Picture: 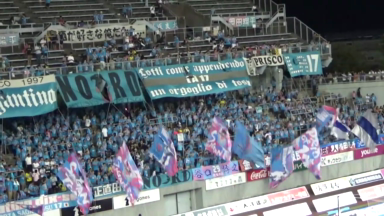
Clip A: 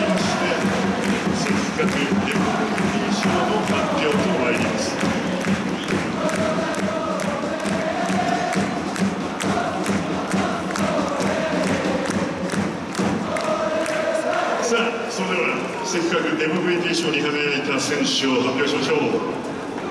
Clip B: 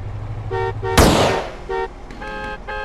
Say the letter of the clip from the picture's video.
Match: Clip A